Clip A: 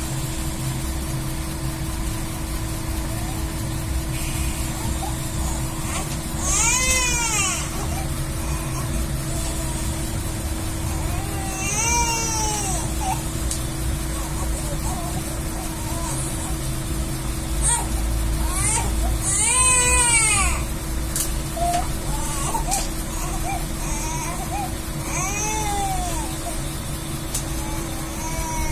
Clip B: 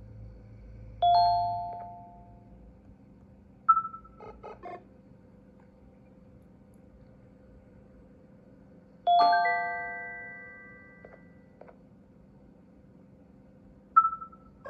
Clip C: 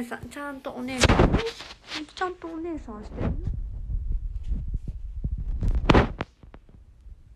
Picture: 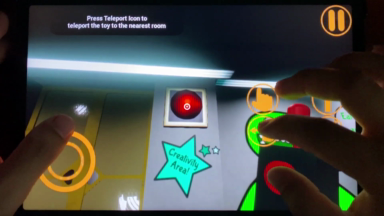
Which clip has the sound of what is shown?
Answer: B